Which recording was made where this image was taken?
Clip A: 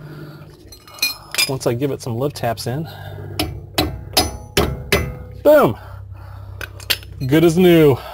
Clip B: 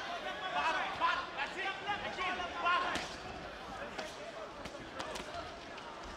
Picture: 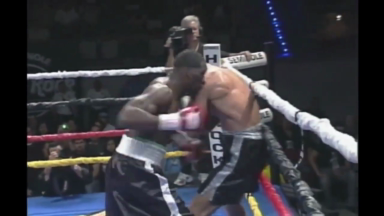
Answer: B